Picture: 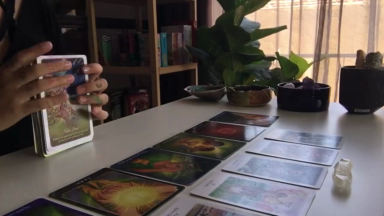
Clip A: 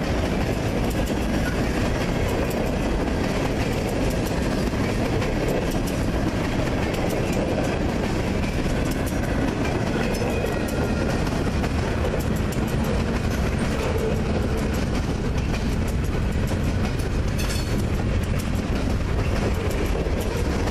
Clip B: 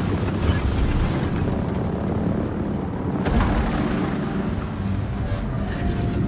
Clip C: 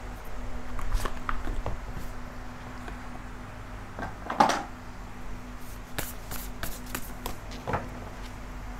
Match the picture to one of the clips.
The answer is C